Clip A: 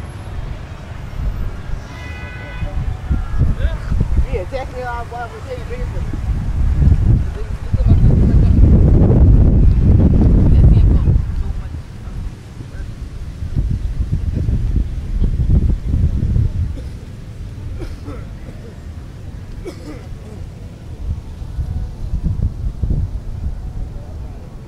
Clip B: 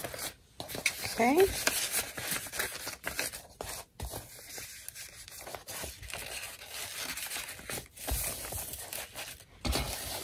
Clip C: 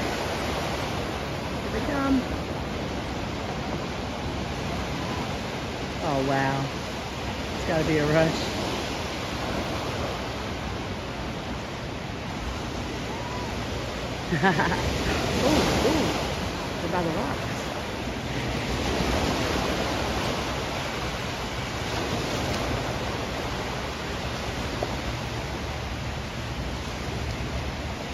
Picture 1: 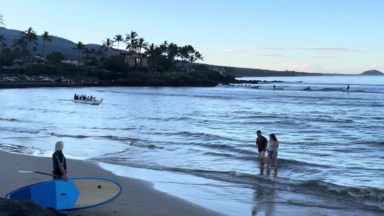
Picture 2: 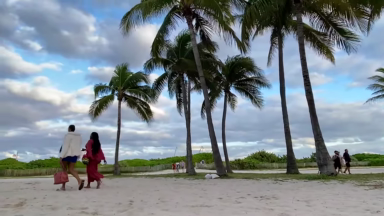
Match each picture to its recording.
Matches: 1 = C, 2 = A